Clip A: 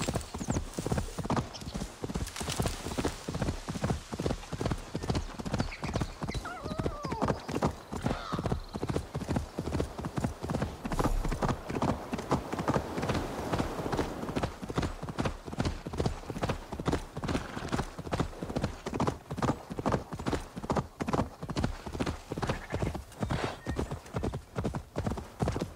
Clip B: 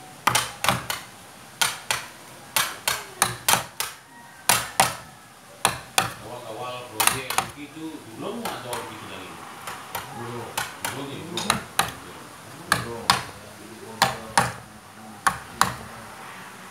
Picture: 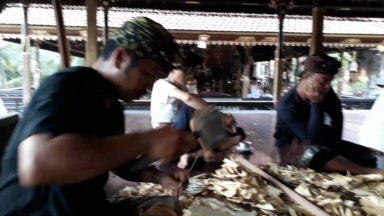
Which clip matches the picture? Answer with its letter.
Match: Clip B